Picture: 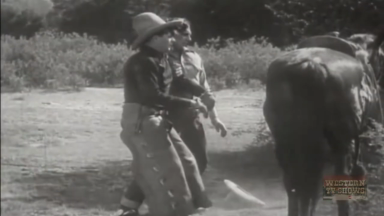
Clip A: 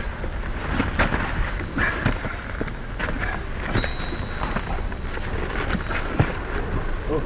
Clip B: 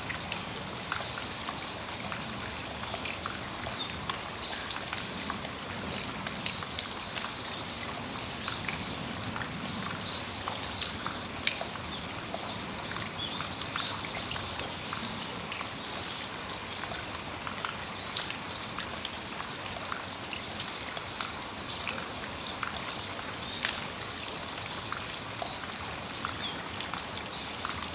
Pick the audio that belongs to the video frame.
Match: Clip A